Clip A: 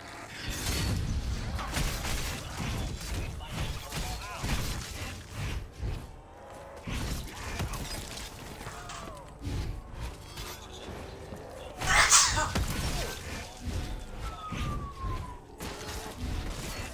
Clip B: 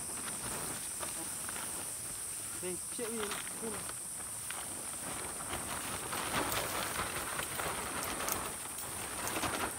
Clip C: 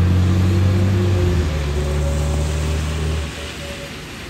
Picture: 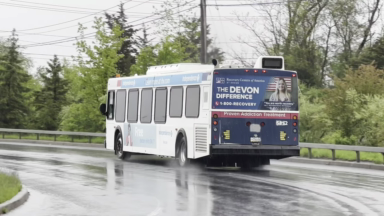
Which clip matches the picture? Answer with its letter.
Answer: C